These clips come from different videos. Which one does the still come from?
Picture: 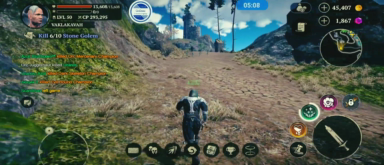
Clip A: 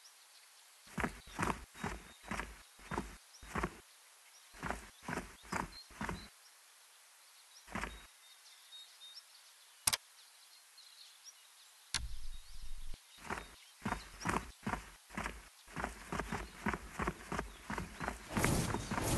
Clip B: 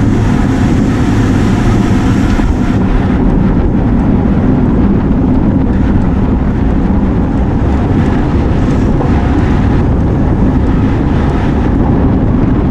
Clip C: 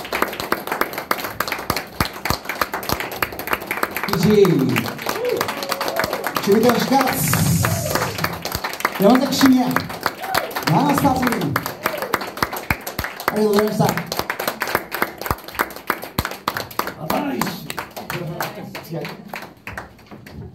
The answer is A